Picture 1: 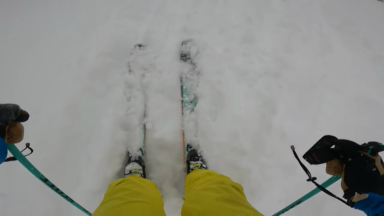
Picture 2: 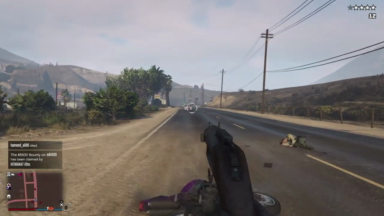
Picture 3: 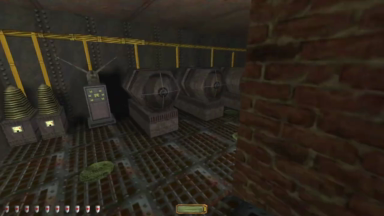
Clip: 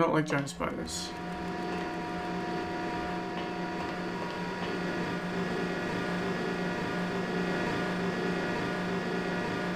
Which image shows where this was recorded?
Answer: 3